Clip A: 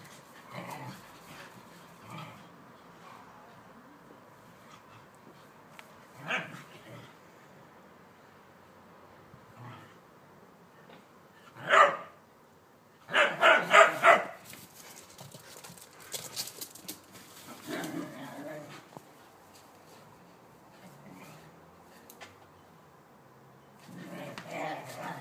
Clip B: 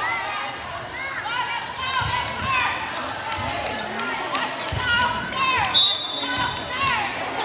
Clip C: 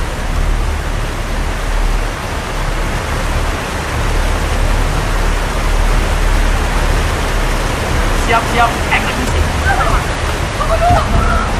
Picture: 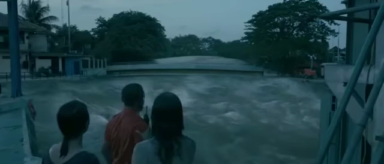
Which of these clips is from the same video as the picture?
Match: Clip C